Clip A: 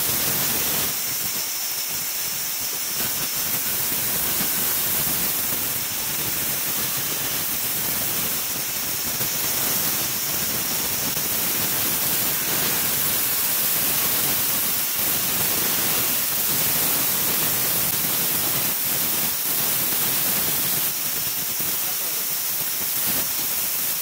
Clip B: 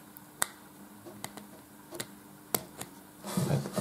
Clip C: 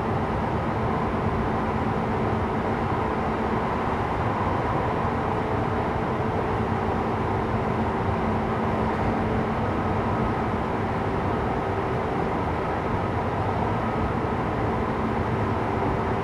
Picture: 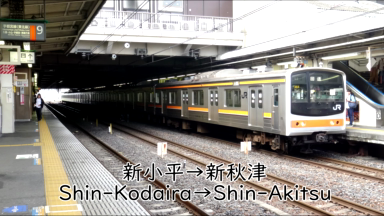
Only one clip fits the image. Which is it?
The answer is C